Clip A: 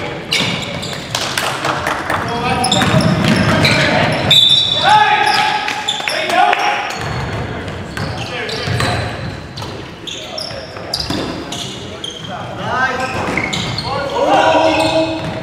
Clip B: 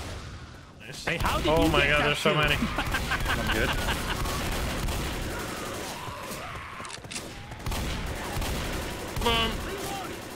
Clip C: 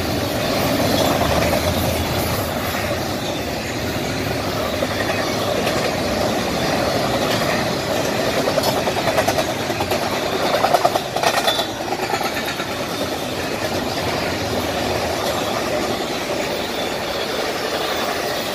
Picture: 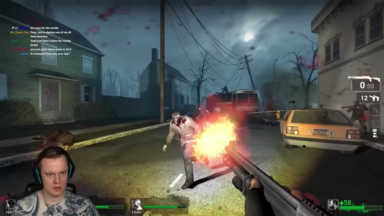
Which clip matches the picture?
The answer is B